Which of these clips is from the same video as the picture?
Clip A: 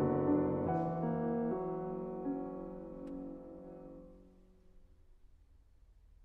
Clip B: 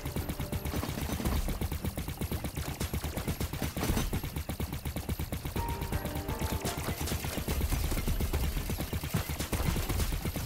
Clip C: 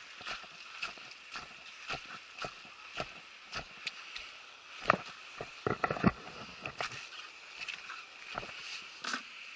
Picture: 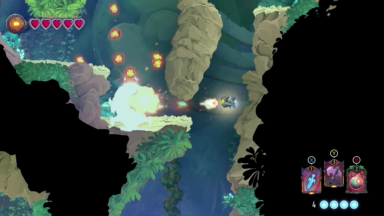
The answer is B